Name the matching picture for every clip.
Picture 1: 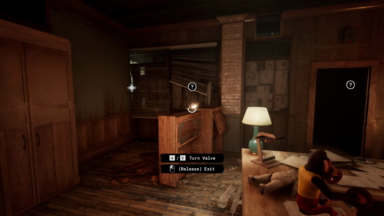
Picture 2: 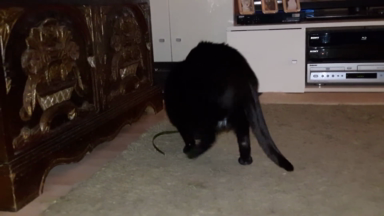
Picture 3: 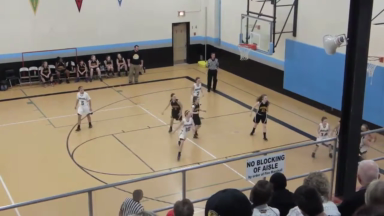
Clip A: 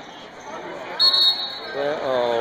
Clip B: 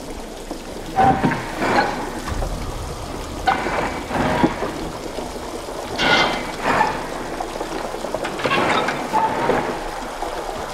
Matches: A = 3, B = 1